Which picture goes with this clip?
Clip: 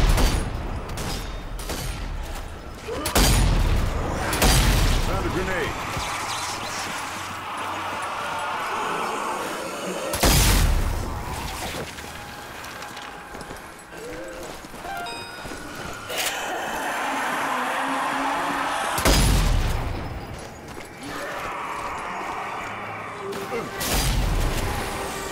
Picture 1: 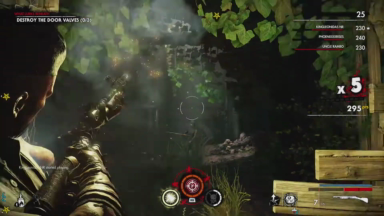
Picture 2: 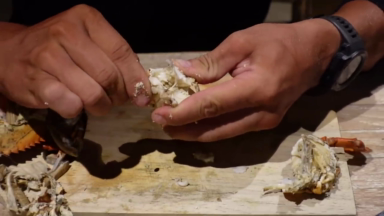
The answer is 1